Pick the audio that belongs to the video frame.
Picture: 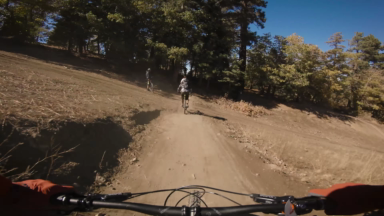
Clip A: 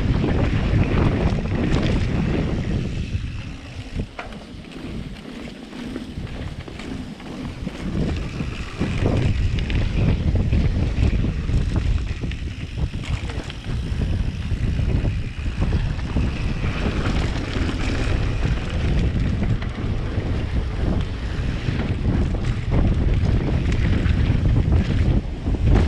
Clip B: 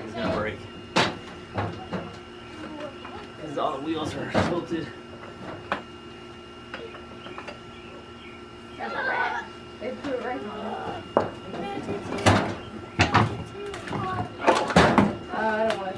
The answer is A